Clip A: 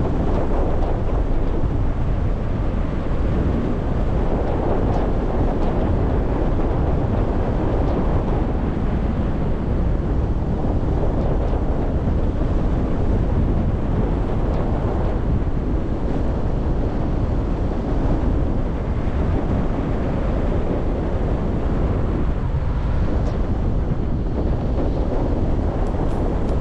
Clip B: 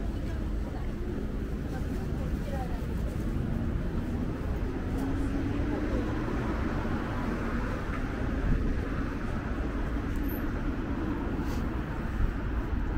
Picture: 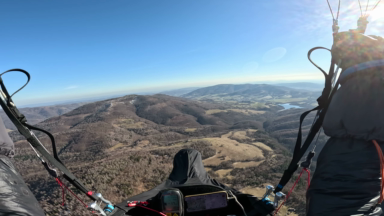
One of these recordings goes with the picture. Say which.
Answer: A